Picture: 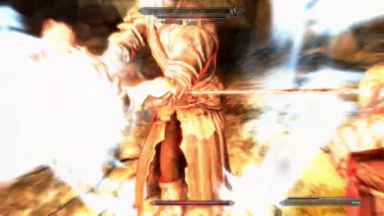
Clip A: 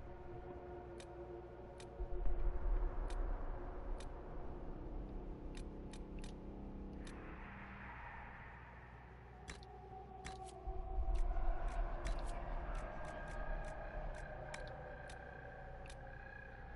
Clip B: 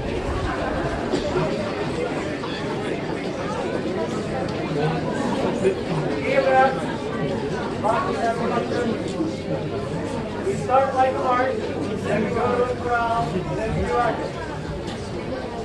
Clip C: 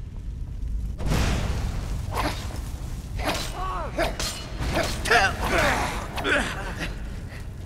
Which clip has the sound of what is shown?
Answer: C